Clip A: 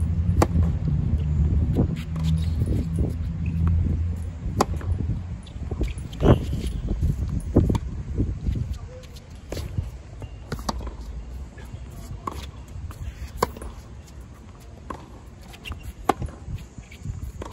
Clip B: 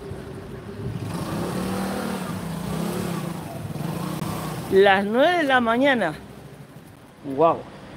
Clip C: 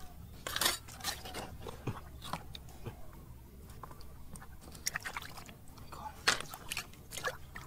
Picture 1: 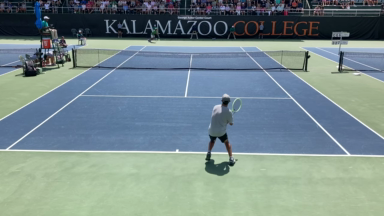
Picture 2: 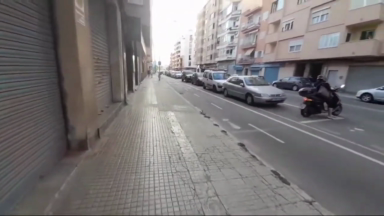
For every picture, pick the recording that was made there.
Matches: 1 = A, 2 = B